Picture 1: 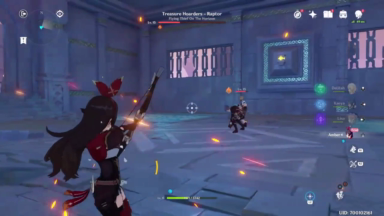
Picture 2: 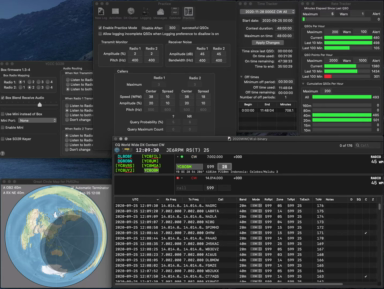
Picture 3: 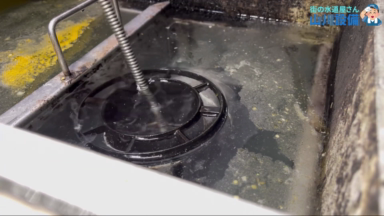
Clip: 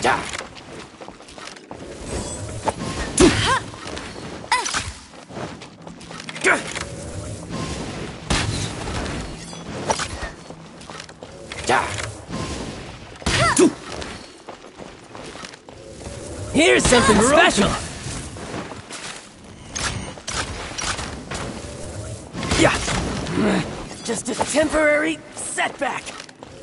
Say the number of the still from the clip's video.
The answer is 1